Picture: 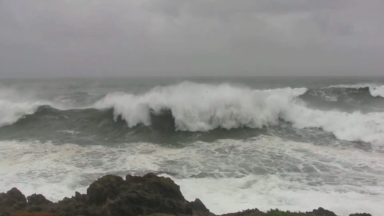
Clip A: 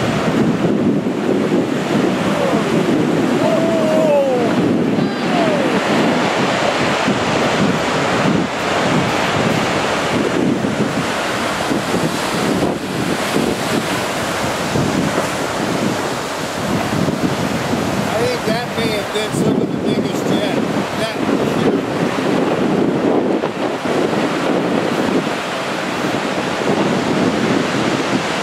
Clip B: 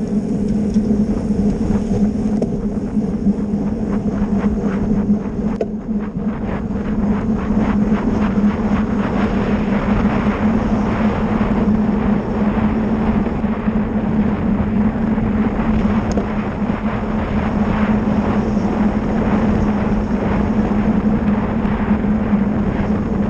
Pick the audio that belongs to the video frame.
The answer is A